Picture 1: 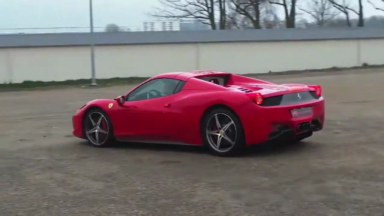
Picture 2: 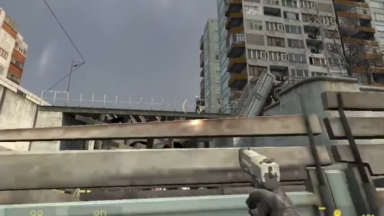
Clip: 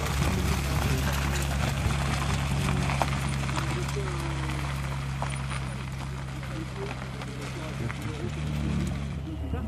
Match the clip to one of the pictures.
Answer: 1